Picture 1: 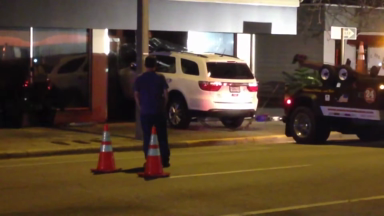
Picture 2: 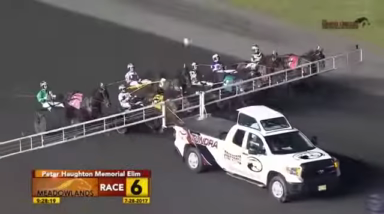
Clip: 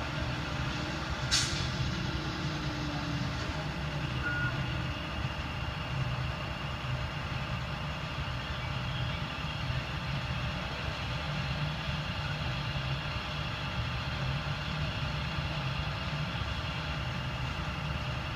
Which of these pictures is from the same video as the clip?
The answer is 1